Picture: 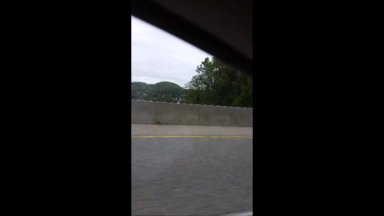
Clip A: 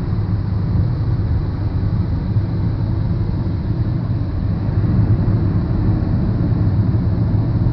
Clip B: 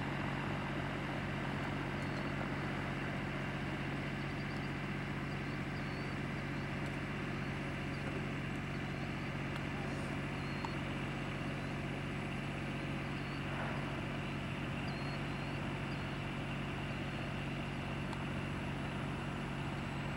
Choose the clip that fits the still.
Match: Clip A